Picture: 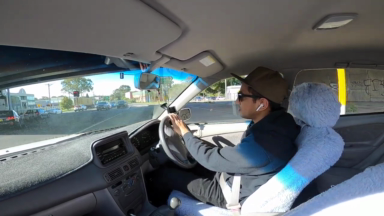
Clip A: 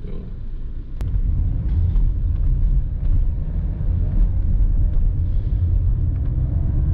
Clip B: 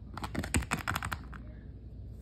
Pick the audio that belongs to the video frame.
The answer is A